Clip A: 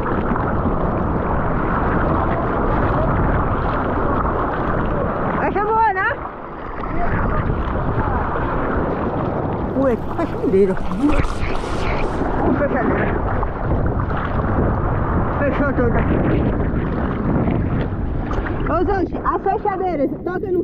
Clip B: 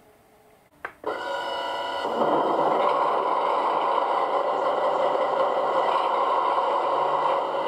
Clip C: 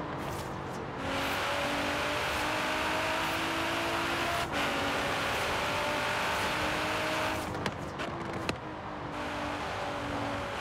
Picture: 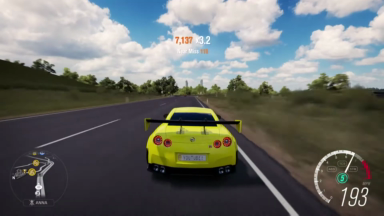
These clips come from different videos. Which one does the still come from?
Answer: C